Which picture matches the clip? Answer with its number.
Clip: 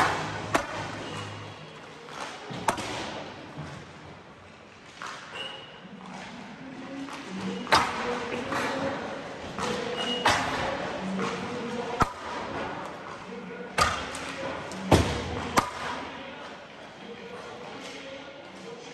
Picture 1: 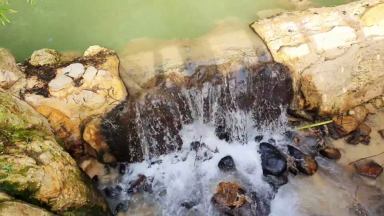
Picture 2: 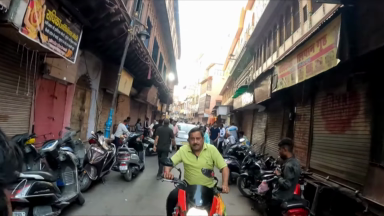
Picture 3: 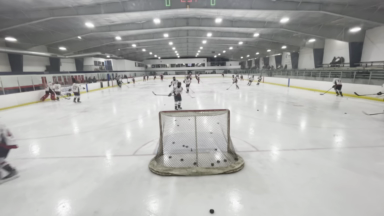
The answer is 3